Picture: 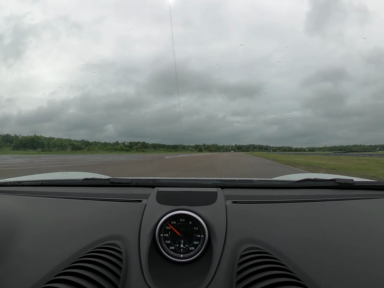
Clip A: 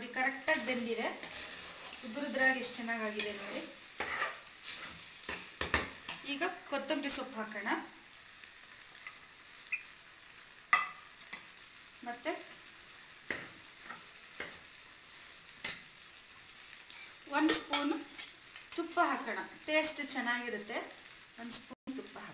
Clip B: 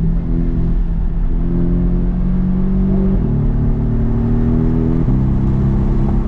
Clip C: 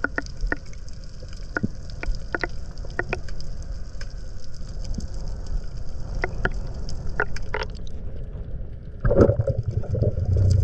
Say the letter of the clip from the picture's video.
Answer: B